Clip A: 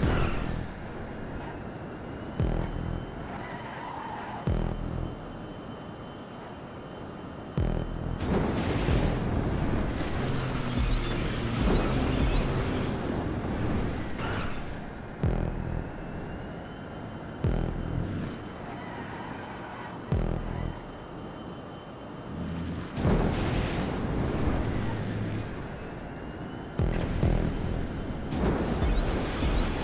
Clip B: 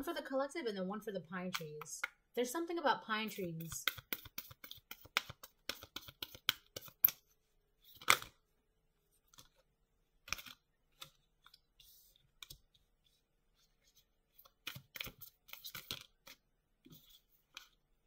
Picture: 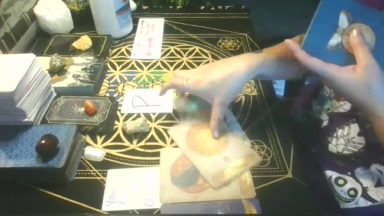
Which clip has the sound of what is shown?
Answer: B